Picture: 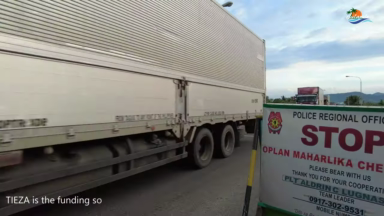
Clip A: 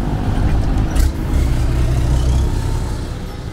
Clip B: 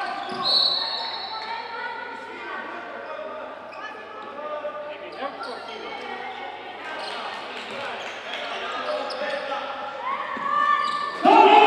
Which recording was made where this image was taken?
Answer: A